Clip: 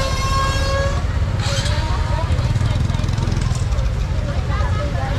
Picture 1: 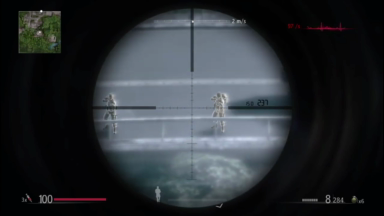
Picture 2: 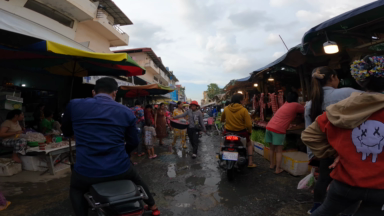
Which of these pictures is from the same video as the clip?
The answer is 2